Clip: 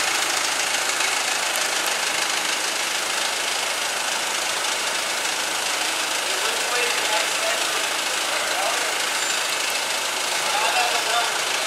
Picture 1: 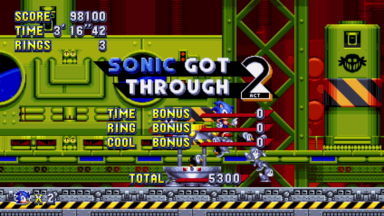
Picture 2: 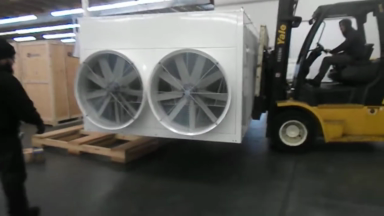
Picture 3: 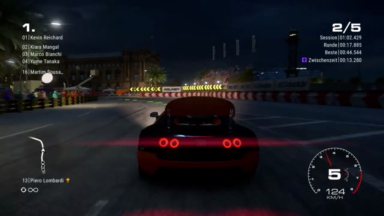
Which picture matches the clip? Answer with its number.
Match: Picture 2